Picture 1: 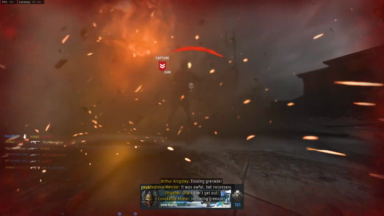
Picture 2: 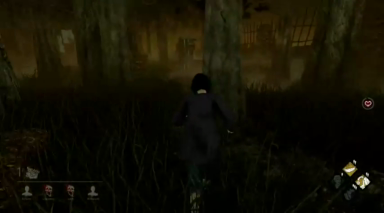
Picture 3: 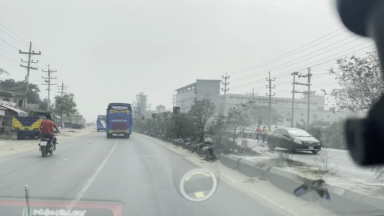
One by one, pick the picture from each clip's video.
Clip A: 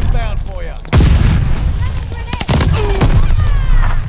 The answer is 1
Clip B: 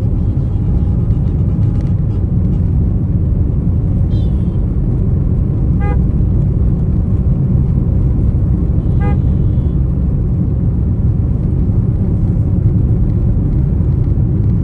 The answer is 3